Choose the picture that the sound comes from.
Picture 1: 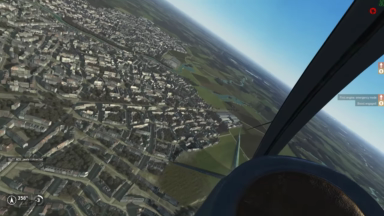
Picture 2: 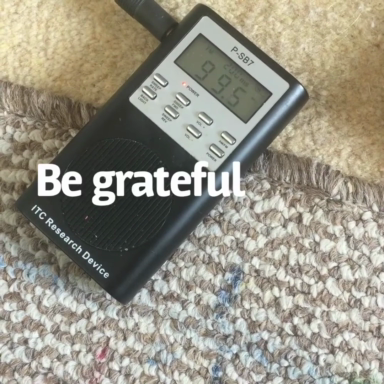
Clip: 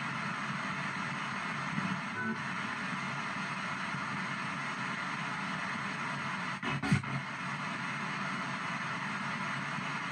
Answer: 2